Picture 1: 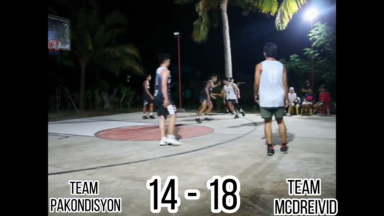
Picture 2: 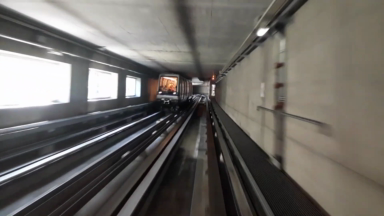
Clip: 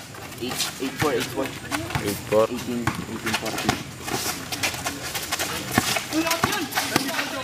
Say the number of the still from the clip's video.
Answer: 1